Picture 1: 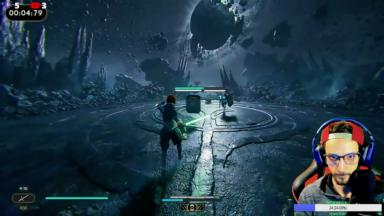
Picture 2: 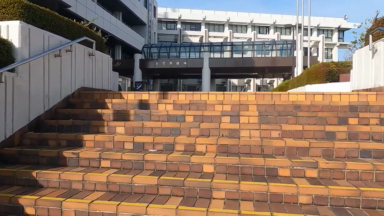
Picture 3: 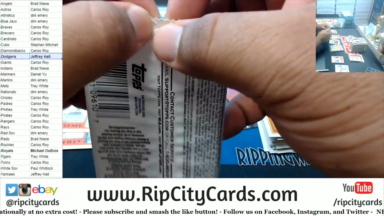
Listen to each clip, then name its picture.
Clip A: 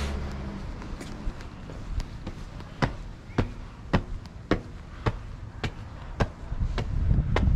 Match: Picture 2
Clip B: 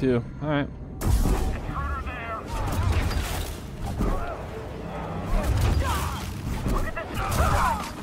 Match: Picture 1